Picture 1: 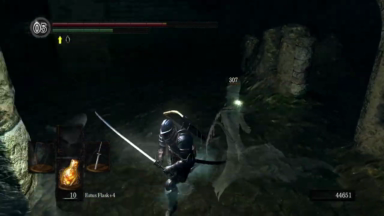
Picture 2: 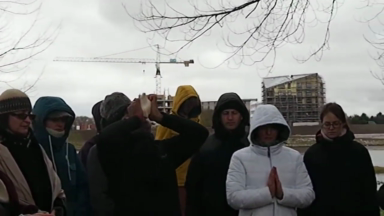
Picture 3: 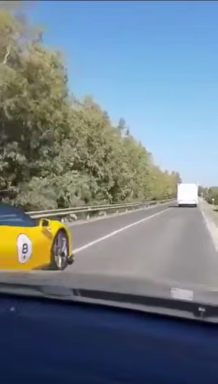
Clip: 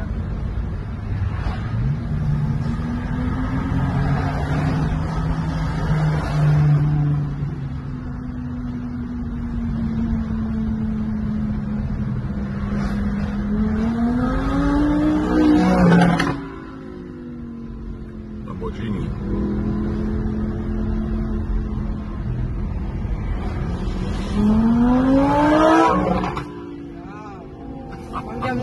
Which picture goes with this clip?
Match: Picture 3